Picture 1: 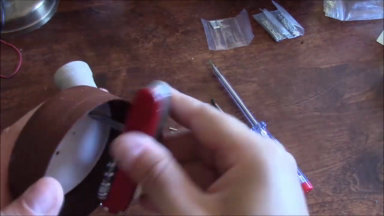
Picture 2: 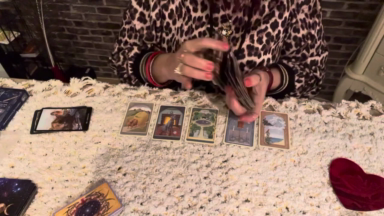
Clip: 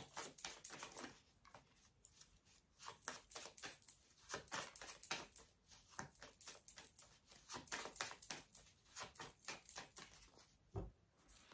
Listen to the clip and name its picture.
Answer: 2